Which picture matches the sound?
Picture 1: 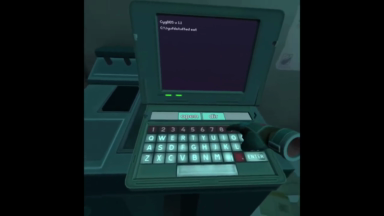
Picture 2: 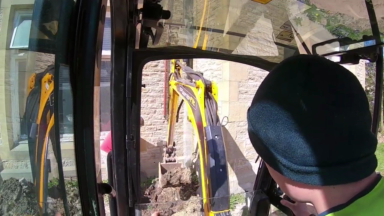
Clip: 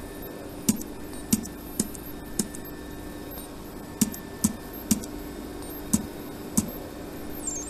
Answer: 1